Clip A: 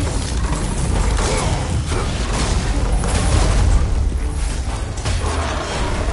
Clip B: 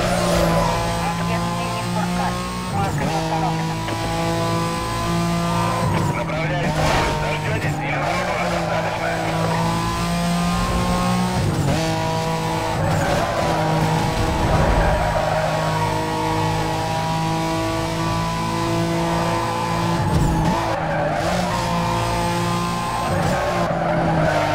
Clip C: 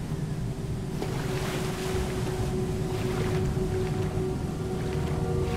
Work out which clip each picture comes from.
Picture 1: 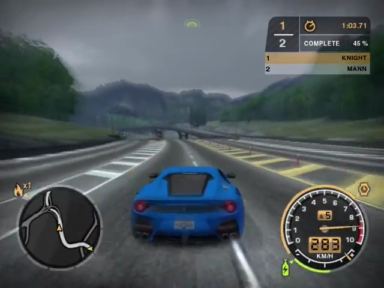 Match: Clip B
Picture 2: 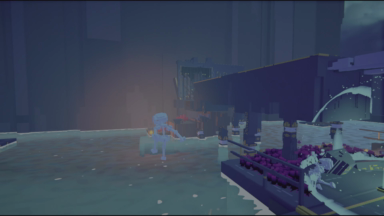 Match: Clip C